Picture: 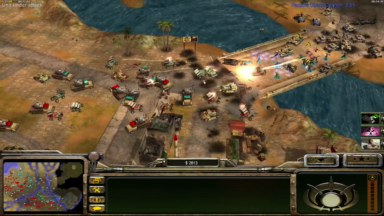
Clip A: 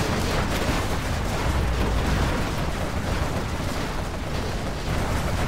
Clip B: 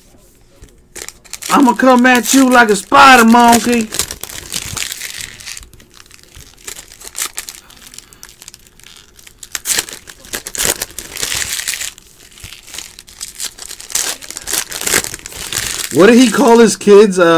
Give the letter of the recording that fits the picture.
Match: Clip A